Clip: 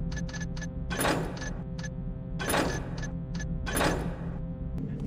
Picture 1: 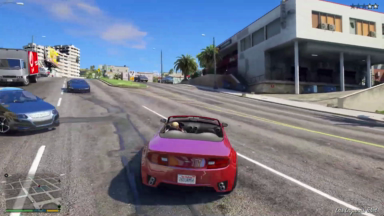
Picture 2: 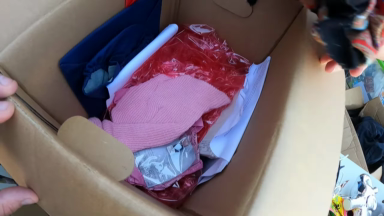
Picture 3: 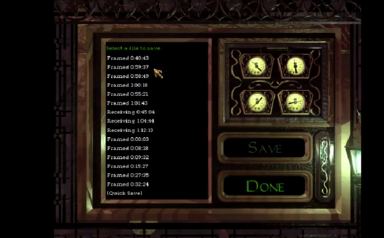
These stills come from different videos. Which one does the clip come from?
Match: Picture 3